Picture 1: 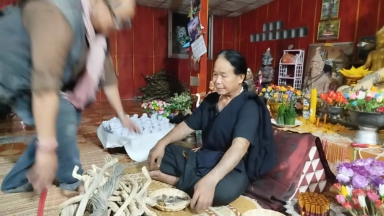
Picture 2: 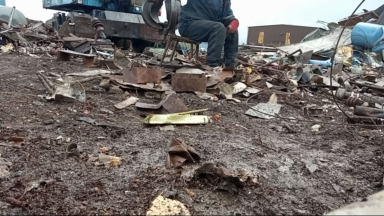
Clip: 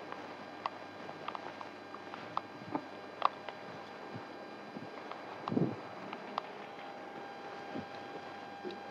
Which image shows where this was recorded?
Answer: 1